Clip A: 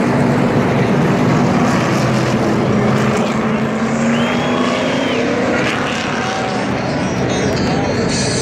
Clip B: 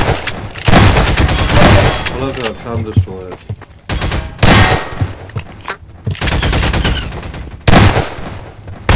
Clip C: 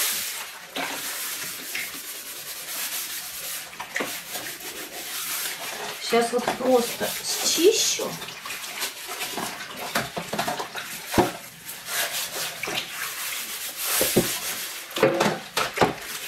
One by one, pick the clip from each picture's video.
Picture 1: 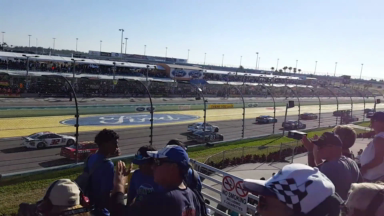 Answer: A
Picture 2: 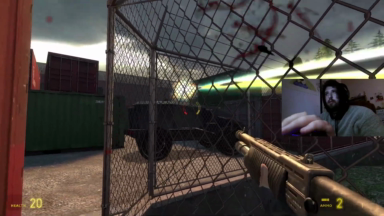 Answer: B